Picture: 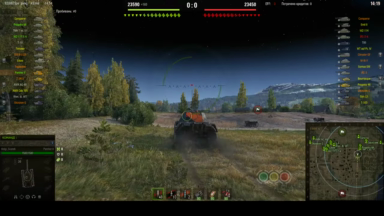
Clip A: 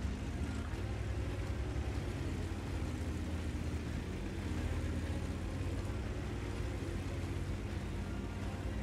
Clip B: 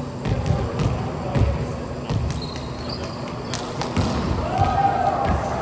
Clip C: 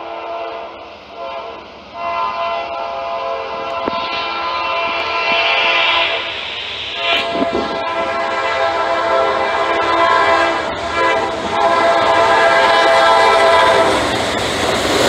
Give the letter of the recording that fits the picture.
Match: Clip A